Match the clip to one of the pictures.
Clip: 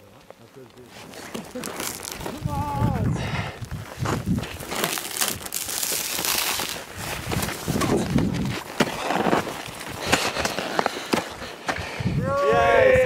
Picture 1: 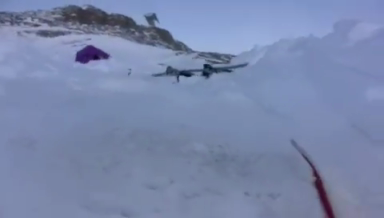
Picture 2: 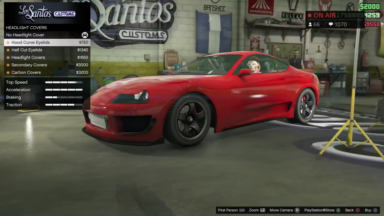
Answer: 1